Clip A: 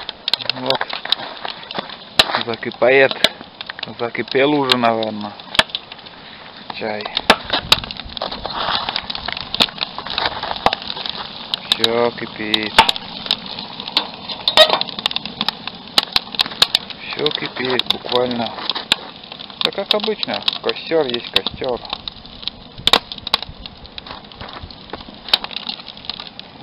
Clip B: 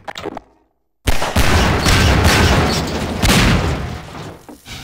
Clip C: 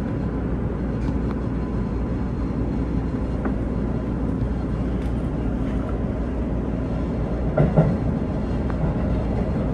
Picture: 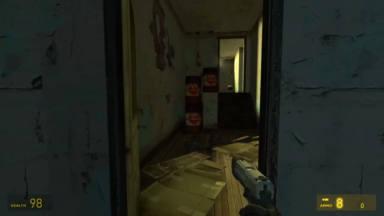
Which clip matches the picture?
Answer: B